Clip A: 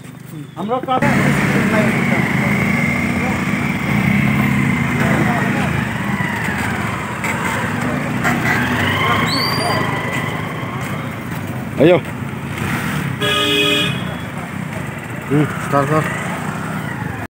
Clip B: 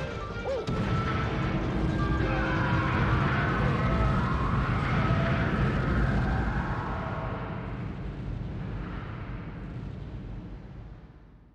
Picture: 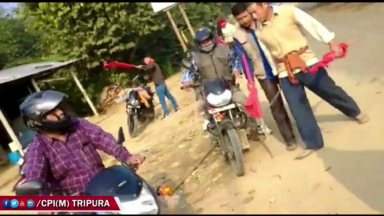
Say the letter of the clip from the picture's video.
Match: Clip A